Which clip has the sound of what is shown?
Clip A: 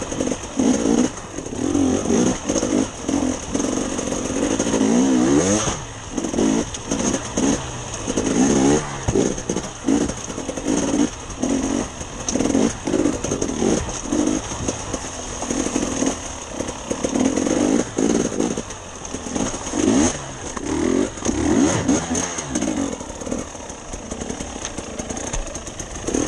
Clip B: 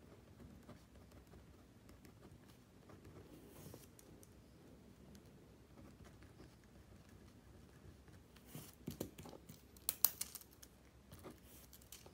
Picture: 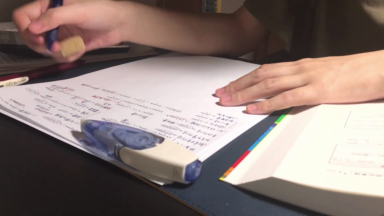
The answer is B